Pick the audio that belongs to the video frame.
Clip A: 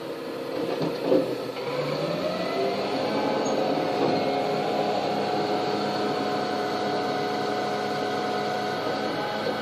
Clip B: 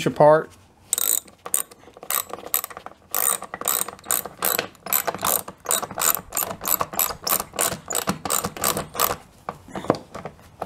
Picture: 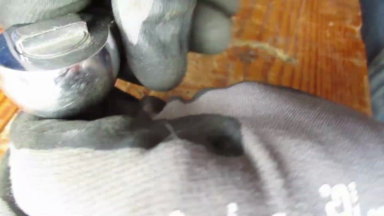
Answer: B